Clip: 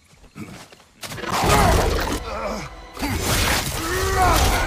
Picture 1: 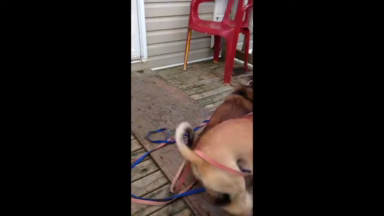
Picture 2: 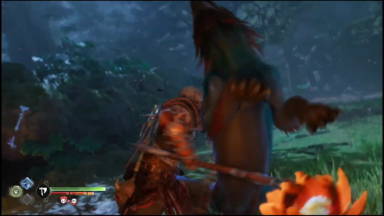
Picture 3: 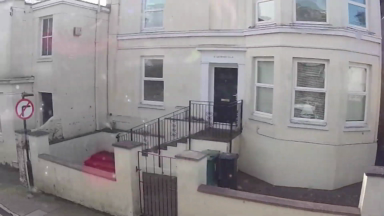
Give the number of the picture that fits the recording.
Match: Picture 2